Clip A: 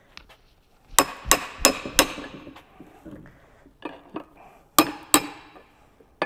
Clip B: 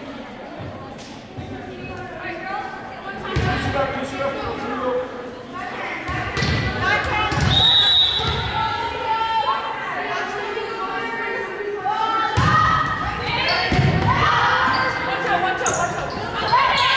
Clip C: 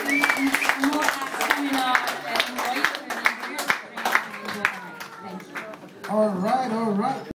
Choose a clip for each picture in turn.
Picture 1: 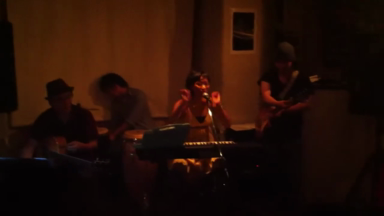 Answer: C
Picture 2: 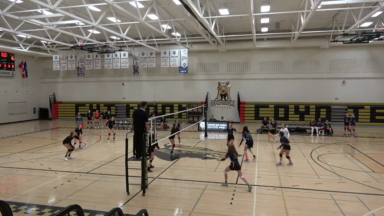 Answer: B